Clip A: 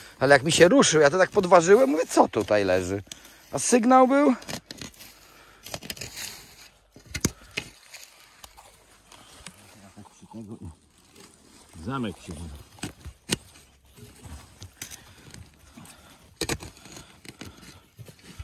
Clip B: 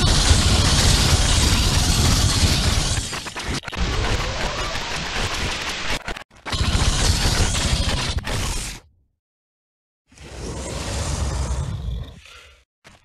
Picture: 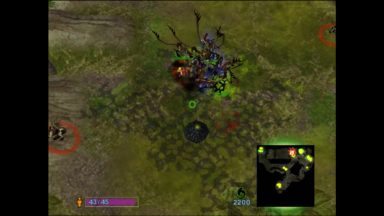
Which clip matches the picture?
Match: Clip B